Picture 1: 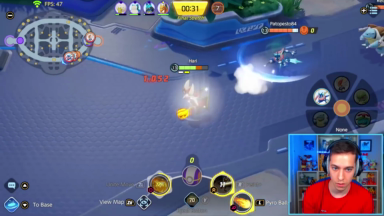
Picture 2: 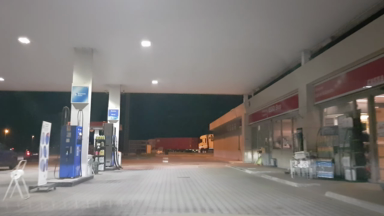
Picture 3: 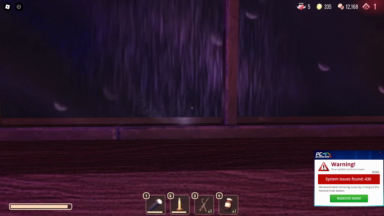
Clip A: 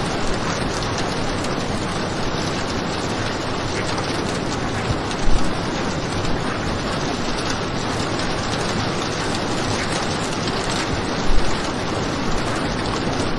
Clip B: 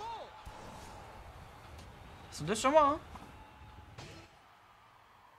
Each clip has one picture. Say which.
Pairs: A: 3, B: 1